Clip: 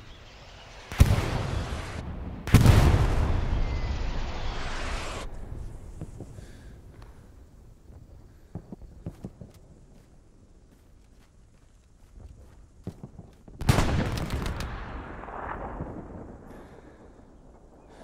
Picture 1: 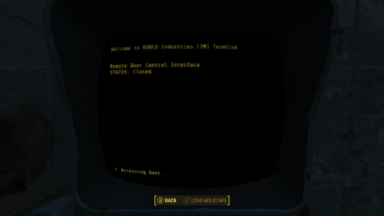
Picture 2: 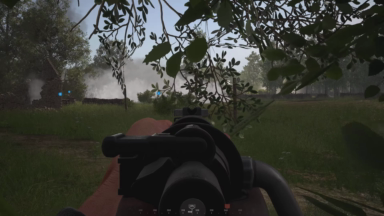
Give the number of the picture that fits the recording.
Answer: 2